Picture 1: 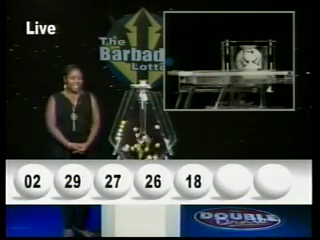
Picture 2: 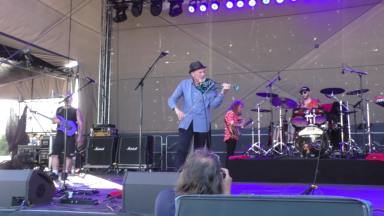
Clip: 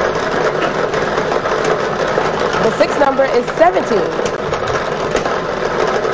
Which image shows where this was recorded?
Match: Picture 1